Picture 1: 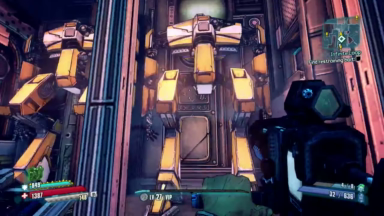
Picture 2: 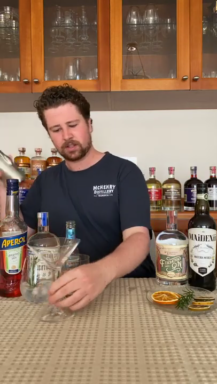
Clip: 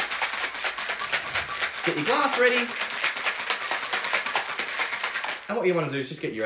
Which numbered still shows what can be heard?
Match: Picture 2